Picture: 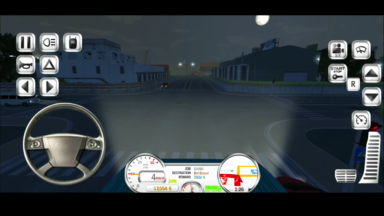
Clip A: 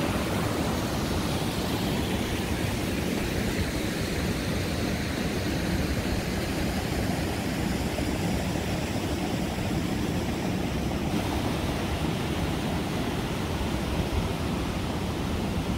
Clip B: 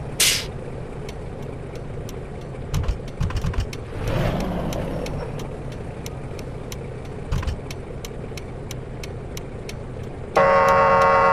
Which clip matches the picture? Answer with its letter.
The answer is B